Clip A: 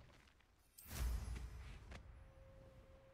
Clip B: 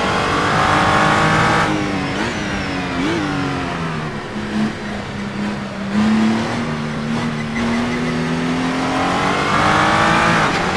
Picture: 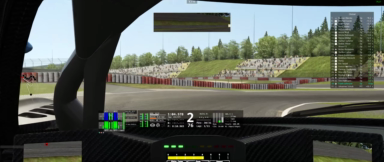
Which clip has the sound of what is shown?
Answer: B